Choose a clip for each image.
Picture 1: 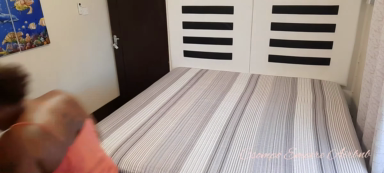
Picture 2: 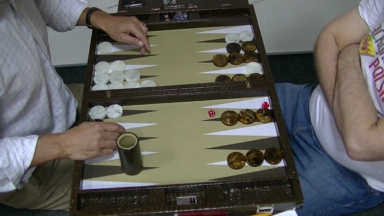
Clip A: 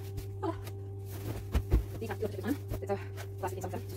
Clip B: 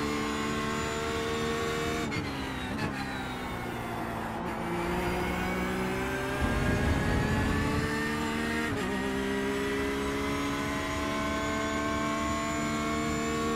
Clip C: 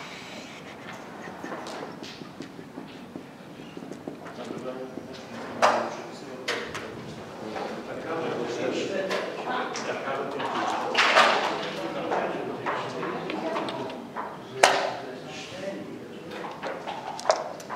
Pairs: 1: A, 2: C